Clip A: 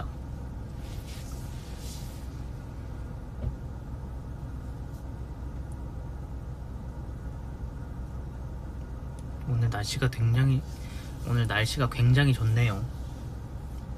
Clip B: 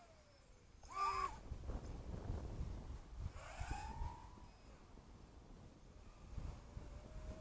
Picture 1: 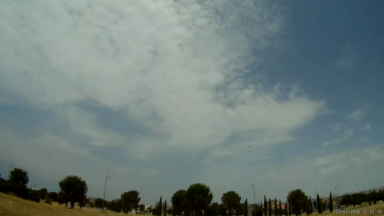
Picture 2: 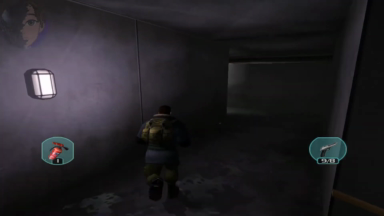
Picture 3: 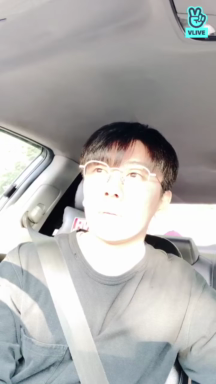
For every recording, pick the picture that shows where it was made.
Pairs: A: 3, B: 1